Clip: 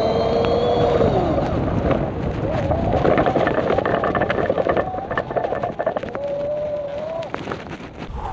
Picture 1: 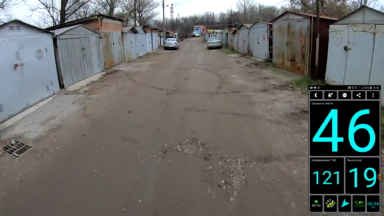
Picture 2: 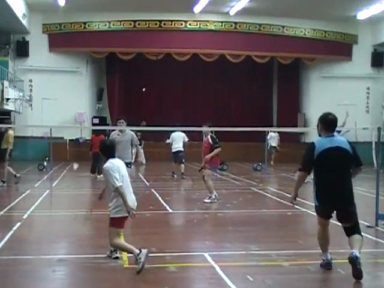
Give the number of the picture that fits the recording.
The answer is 1